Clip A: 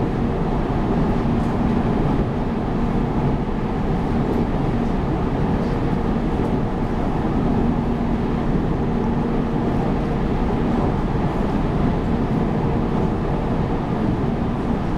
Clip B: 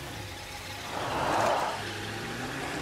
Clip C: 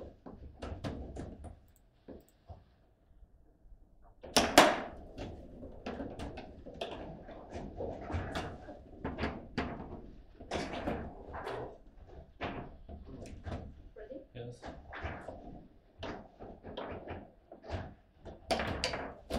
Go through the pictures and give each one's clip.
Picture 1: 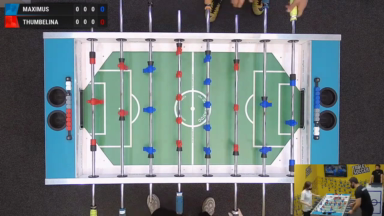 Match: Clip C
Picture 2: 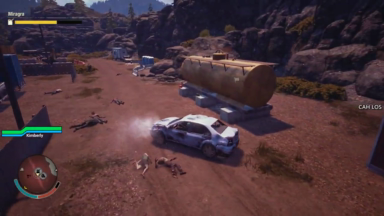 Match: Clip B